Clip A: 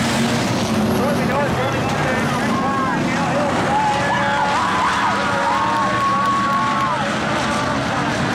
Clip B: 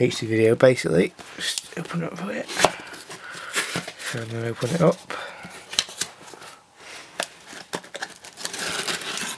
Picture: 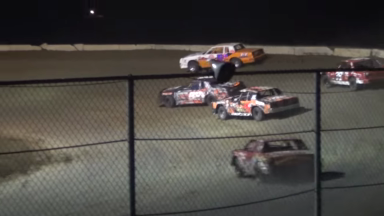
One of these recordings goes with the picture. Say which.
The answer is A